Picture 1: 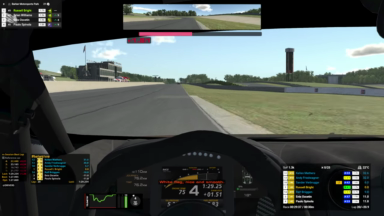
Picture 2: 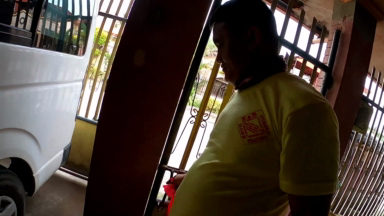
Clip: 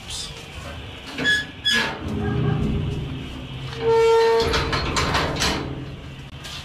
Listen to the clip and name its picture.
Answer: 2